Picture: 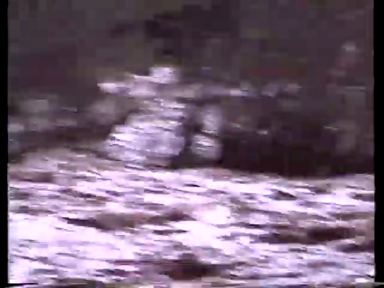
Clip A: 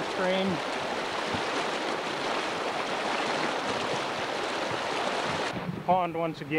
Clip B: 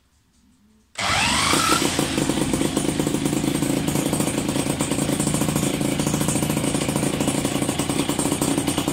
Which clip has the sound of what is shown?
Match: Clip A